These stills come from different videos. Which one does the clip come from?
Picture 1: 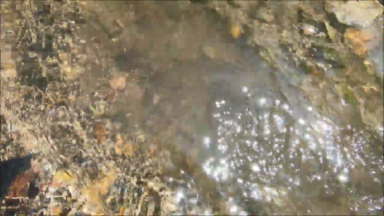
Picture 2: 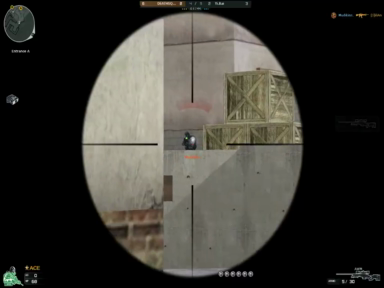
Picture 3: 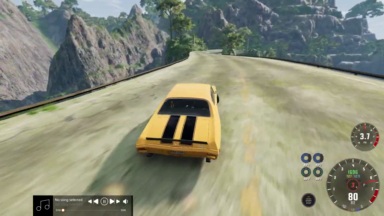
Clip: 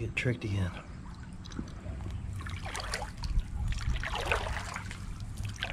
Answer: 1